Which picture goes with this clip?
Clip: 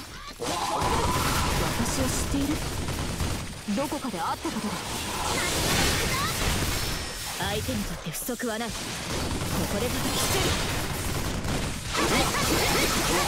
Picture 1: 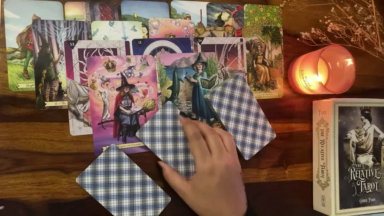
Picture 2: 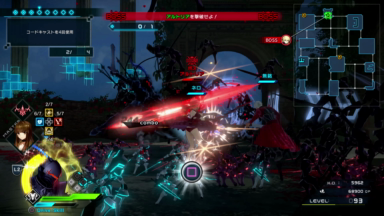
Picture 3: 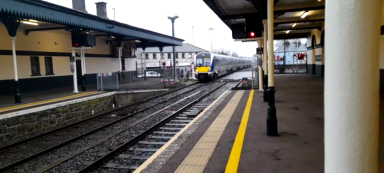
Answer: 2